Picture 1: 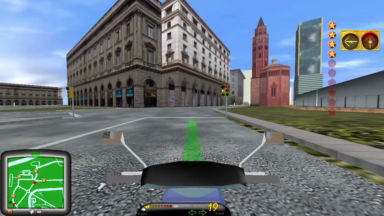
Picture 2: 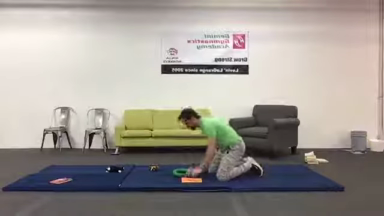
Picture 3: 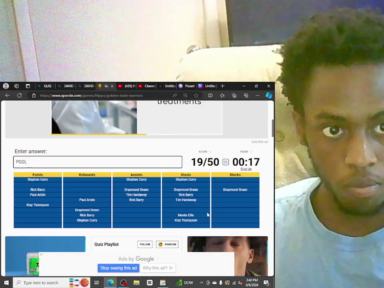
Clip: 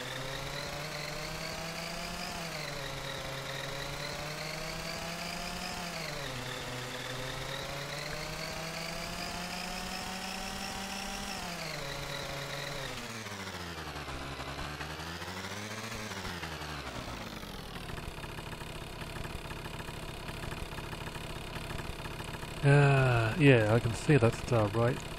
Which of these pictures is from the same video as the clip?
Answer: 1